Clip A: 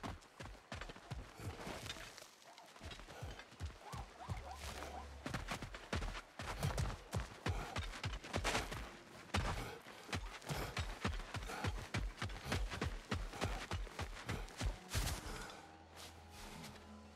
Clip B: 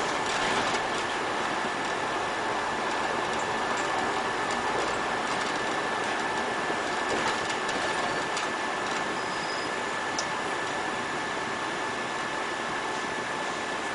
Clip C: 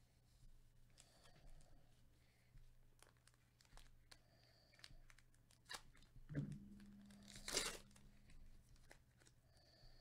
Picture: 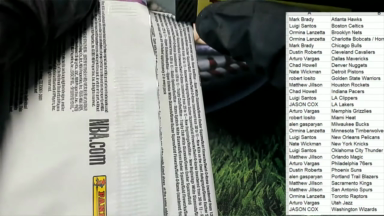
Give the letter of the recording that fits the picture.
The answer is C